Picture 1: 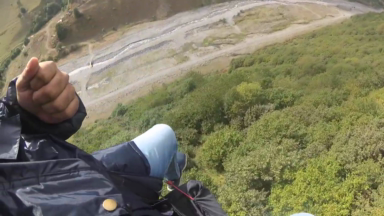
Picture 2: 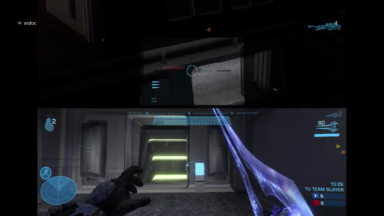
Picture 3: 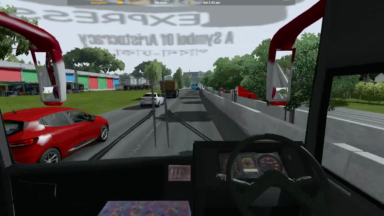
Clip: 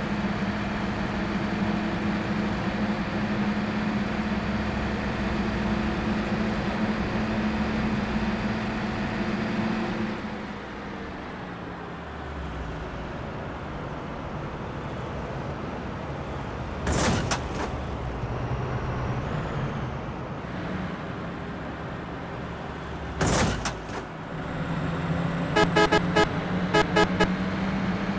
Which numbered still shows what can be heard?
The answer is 3